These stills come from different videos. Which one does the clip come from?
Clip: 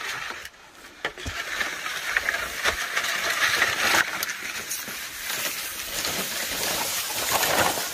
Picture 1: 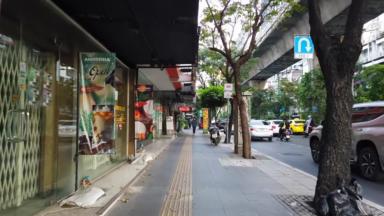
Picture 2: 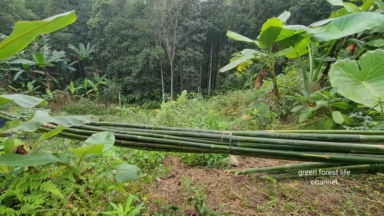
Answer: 2